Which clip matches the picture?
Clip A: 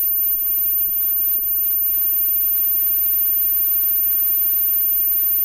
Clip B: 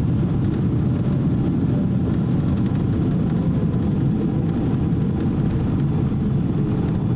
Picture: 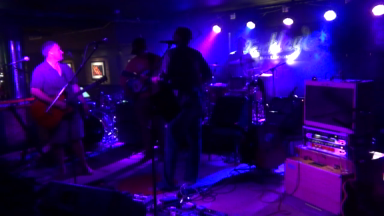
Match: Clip A